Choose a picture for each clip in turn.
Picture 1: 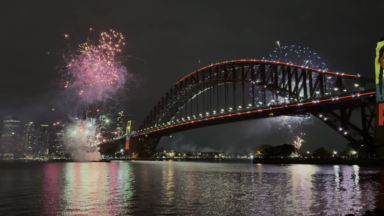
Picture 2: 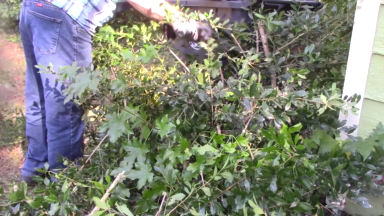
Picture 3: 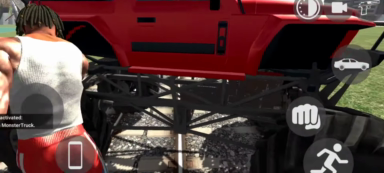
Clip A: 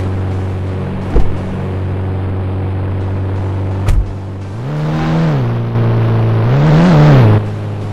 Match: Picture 3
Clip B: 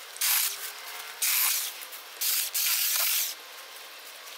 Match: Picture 2